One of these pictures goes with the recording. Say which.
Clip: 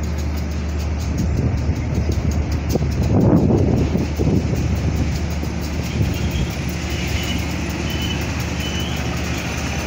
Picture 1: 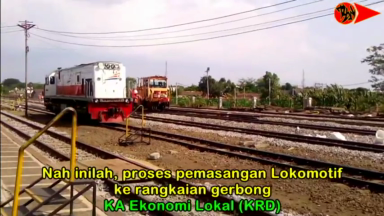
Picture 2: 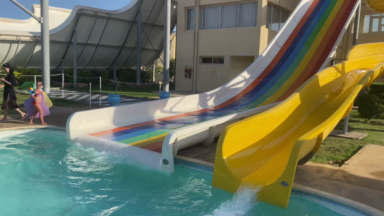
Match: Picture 1